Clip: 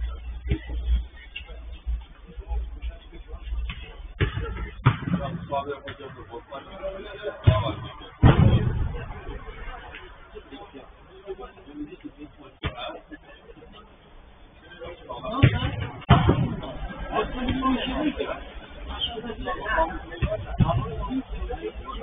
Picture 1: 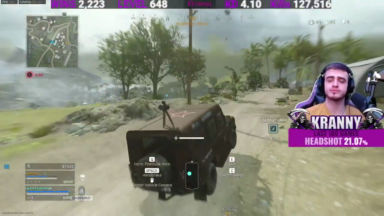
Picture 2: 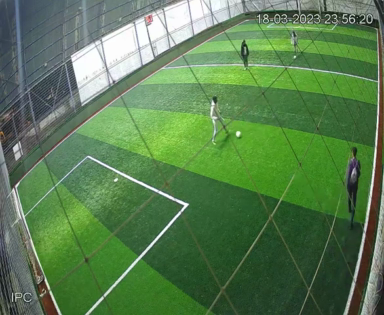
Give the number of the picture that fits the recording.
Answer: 2